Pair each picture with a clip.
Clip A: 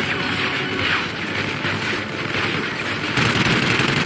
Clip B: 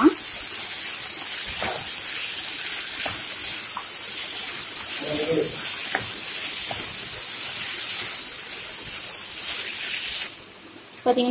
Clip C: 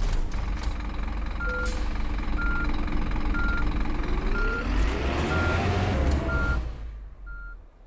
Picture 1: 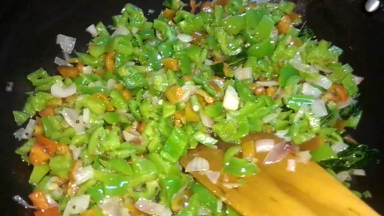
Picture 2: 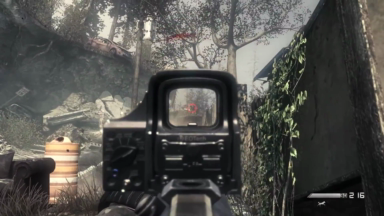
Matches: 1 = B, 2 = A